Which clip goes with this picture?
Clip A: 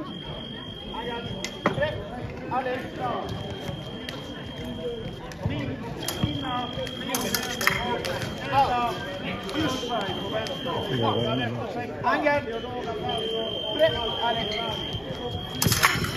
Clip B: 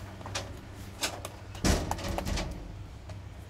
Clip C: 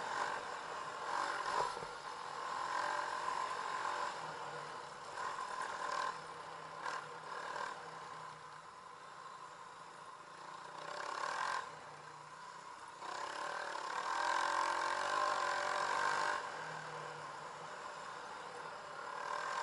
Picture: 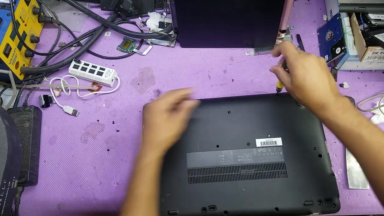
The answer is B